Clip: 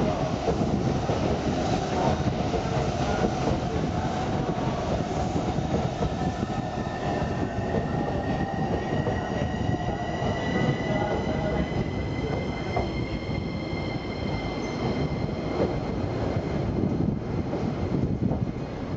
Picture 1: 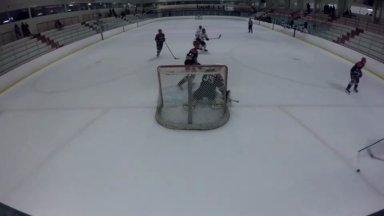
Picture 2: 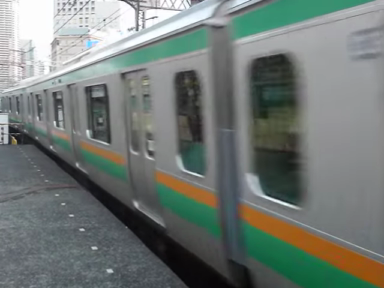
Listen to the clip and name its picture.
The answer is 2